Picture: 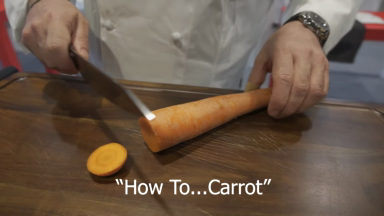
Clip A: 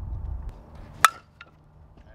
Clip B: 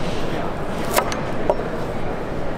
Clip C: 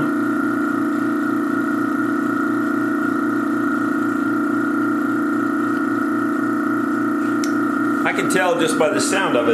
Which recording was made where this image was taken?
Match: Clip B